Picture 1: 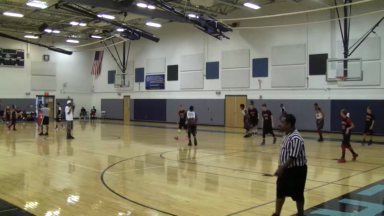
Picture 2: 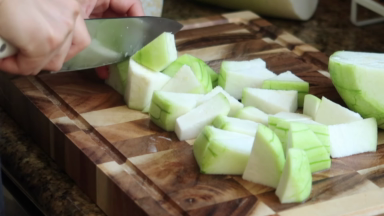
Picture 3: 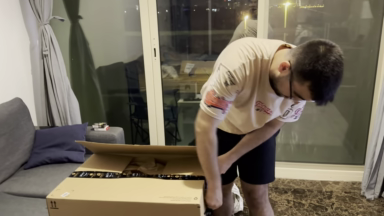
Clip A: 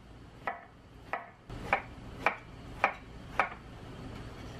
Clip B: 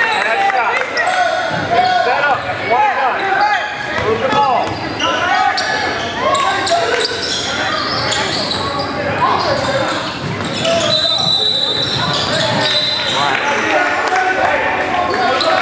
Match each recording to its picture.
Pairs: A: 2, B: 1